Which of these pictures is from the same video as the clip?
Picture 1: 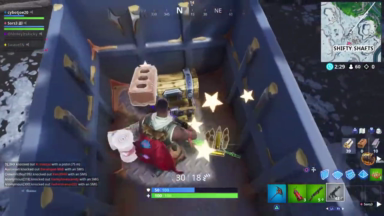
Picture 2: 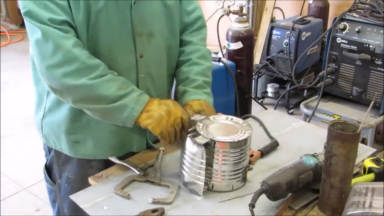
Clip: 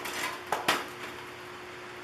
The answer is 2